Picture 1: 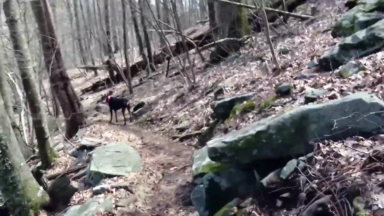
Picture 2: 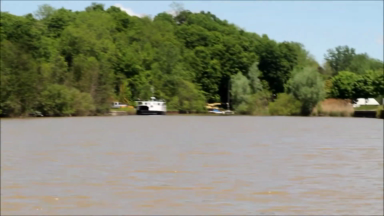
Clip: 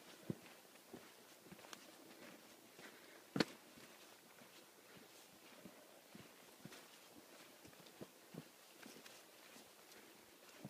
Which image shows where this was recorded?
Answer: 1